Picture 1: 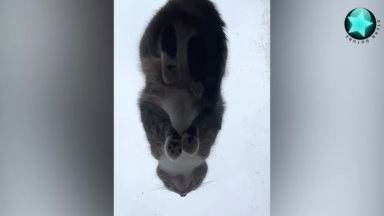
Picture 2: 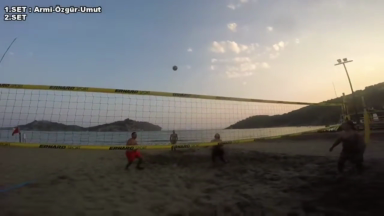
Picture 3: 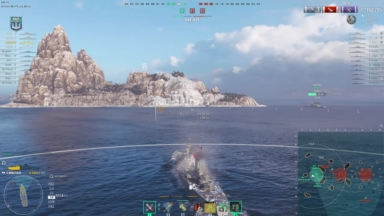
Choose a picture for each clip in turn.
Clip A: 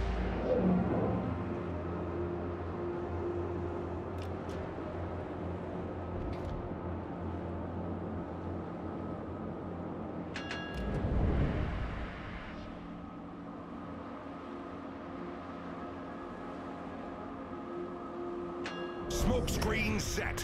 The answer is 3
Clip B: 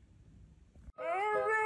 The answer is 1